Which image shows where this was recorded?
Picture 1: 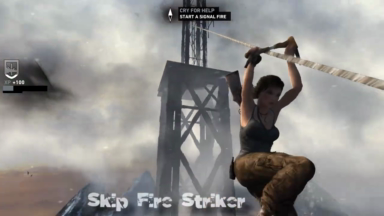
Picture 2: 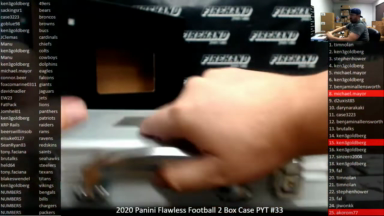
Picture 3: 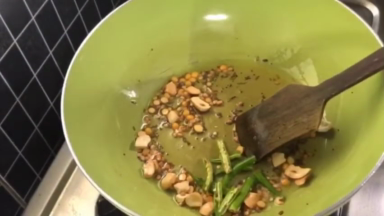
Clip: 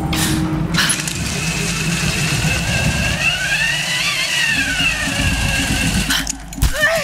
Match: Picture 1